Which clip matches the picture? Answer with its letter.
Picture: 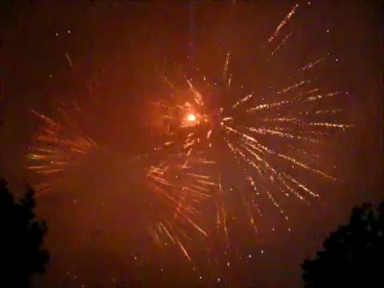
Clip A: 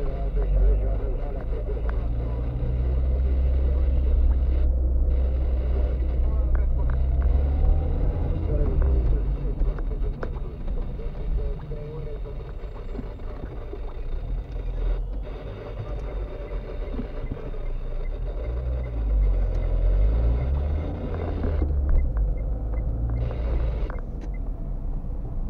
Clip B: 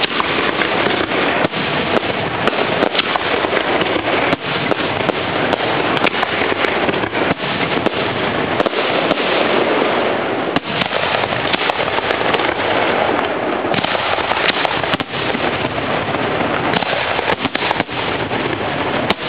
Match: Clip B